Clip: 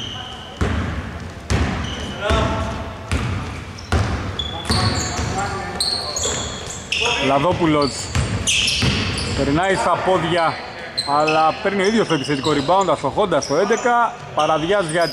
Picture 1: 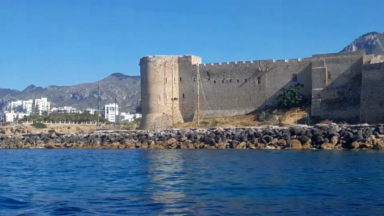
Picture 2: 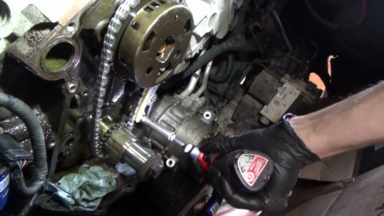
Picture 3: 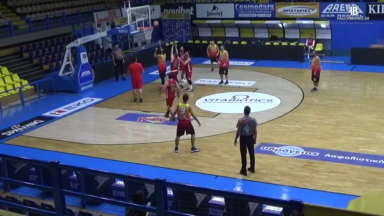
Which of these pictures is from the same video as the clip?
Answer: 3